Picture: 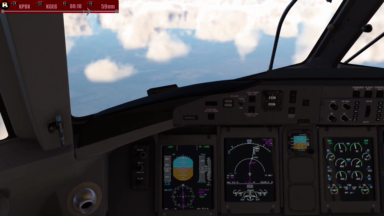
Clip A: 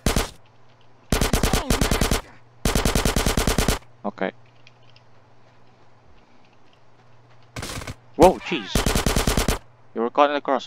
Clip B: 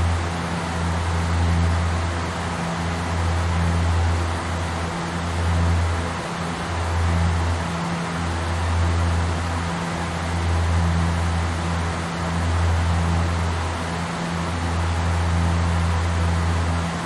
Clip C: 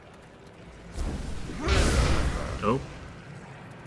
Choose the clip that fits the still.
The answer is B